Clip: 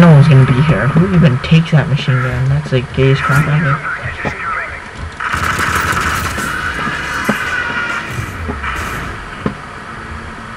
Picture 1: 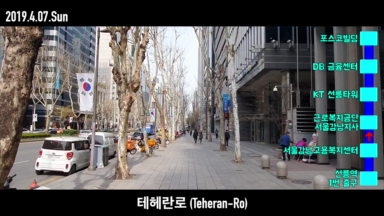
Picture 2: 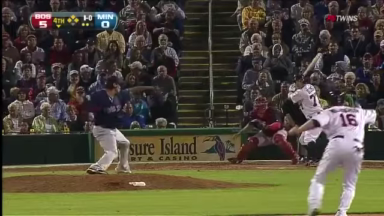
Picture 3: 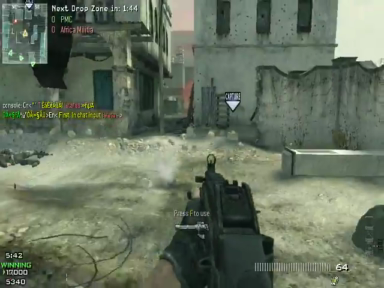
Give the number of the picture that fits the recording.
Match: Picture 3